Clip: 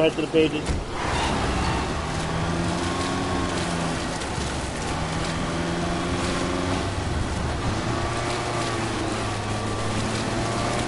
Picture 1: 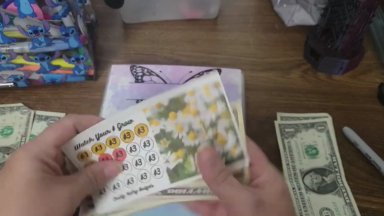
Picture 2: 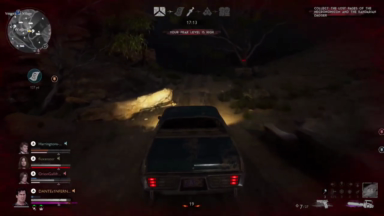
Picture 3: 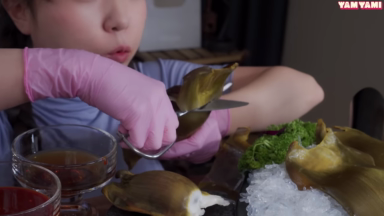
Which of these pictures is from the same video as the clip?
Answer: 2